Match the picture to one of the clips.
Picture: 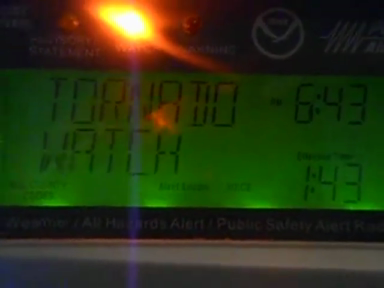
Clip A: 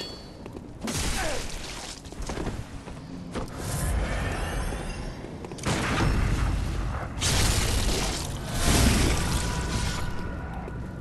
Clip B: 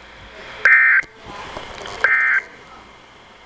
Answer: B